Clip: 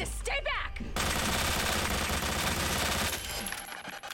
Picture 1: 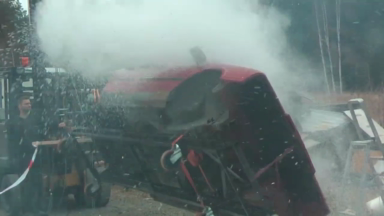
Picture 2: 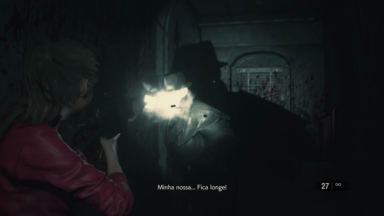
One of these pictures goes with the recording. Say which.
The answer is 2